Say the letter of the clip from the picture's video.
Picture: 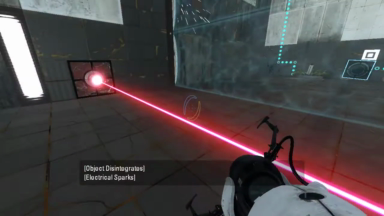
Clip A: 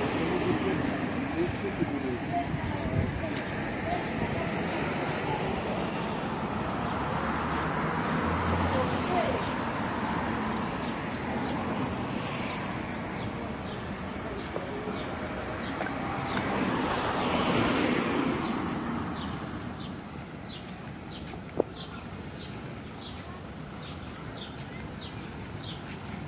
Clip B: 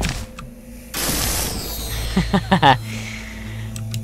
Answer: B